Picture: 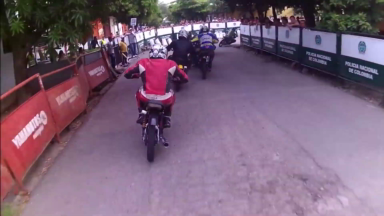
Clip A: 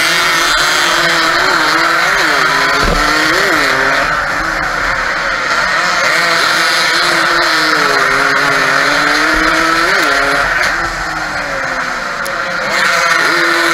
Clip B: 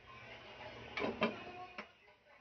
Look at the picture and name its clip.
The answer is A